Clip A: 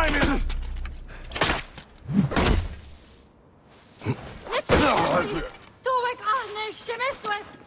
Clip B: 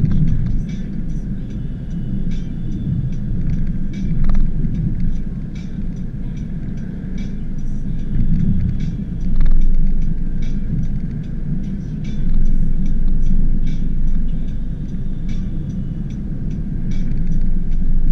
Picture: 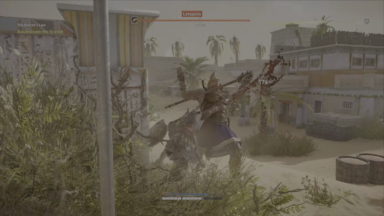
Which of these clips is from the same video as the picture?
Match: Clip A